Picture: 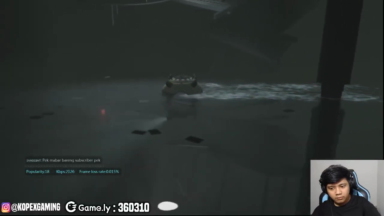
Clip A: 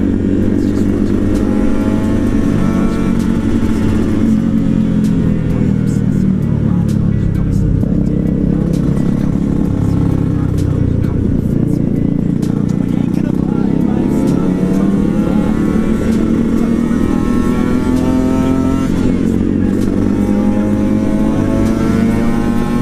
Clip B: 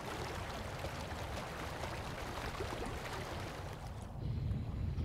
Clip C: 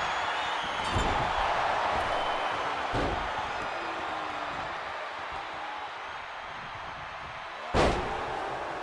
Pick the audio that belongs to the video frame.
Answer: B